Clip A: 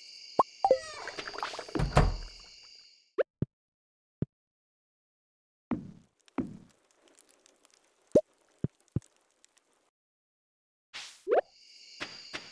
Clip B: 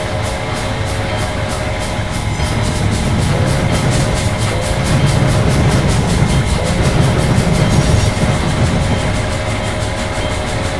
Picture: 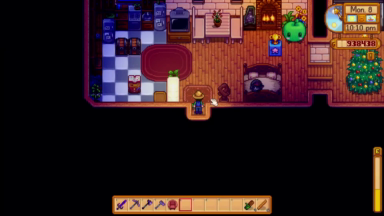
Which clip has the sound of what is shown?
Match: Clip A